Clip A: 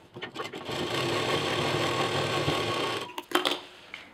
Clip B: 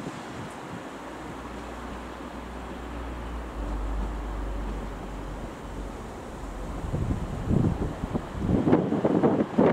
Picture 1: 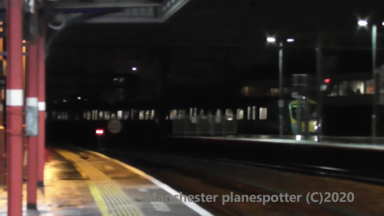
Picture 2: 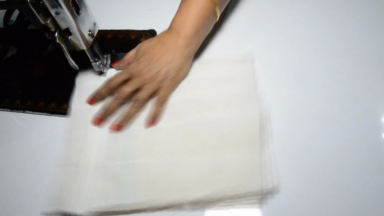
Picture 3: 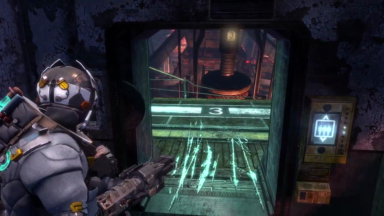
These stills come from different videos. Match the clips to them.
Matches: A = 2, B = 1